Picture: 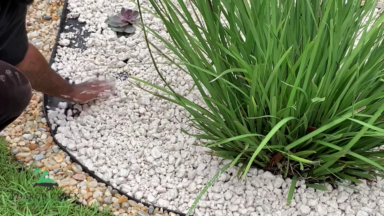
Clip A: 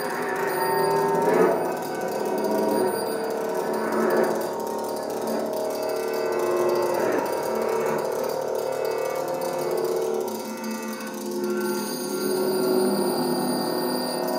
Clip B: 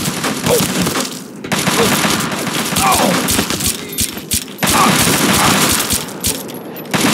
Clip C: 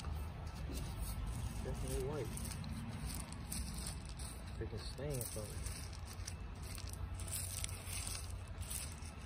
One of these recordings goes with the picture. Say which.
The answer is C